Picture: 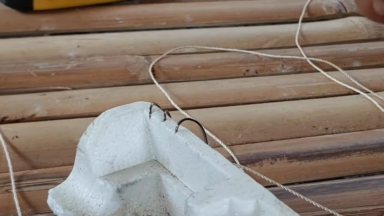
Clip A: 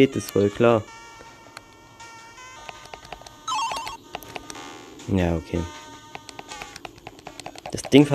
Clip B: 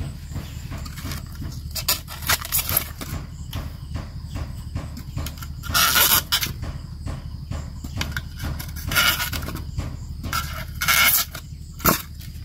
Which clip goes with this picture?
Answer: B